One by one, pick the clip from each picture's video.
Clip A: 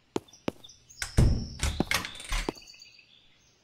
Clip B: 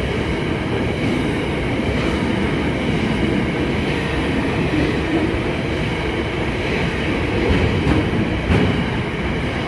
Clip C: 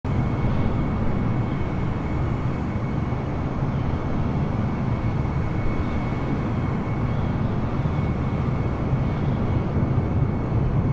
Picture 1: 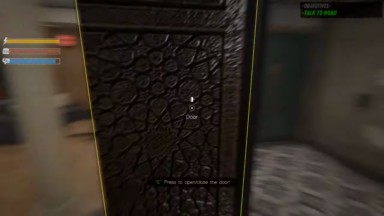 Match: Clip A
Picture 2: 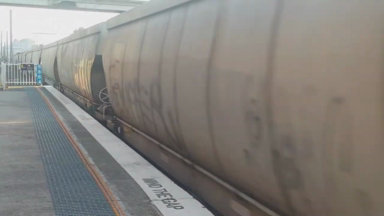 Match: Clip B